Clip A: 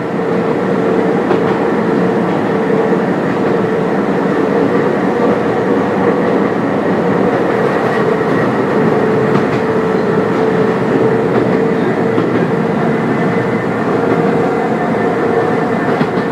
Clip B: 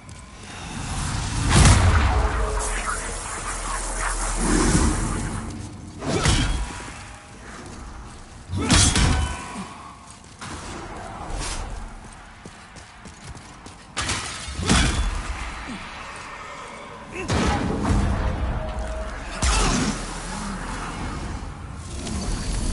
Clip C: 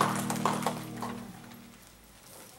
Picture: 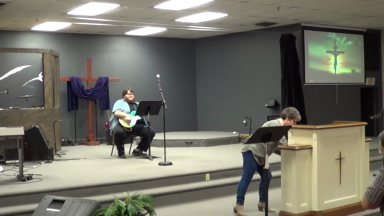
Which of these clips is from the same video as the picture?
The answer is C